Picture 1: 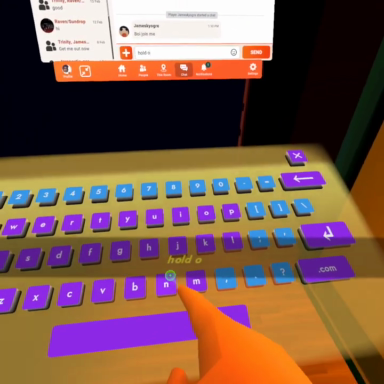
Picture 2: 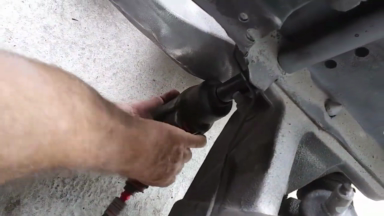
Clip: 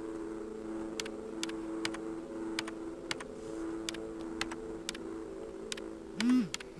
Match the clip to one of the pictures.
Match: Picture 1